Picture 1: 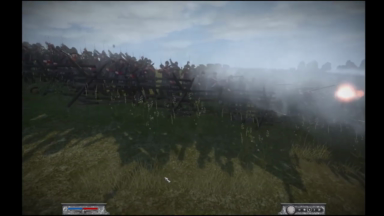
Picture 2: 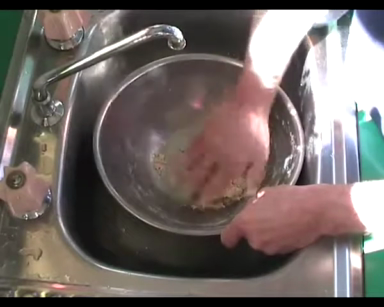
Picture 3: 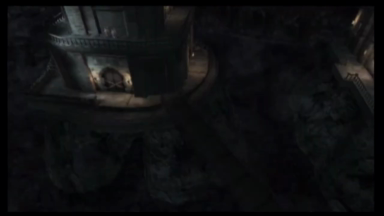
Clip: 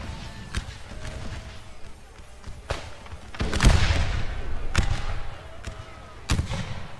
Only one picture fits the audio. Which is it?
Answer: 1